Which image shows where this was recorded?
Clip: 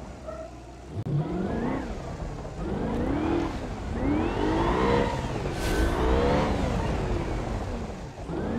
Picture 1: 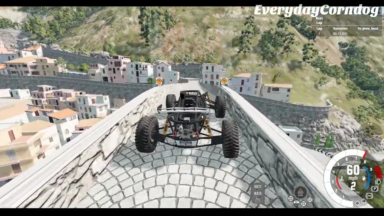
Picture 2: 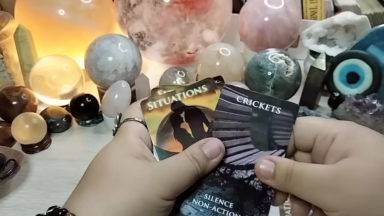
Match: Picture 1